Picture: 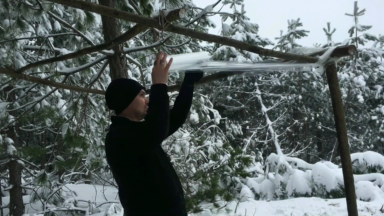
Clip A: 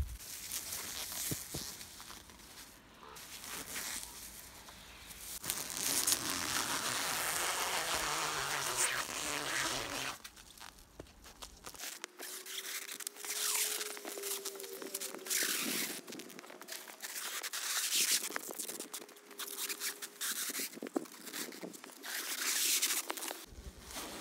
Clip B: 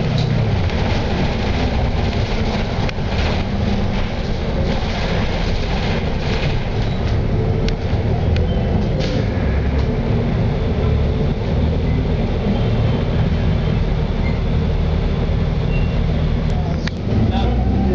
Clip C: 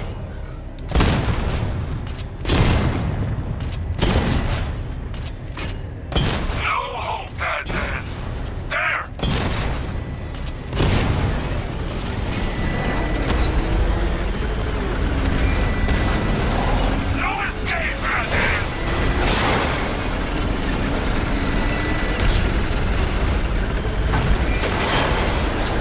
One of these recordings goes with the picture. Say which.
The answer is A